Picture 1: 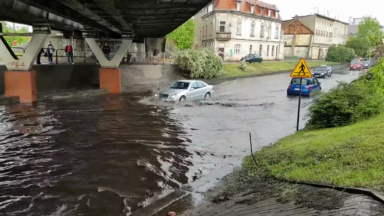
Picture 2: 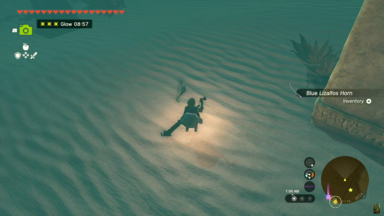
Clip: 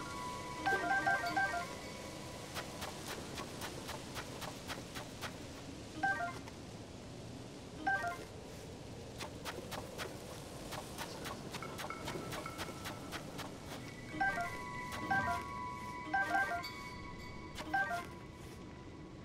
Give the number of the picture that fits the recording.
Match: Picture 2